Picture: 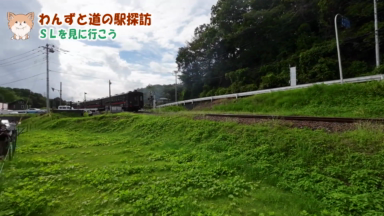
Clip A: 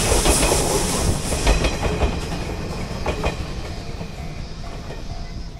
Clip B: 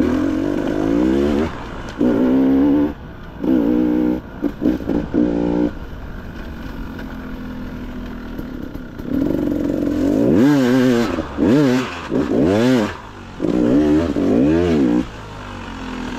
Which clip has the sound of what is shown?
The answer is A